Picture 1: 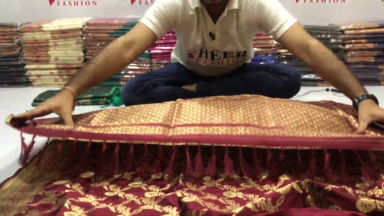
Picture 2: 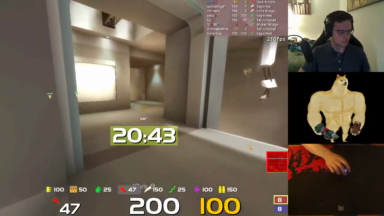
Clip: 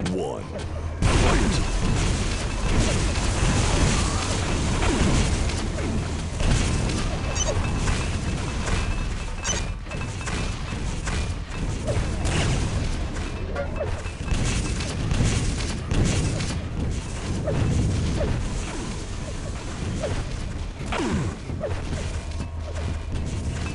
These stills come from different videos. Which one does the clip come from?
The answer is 2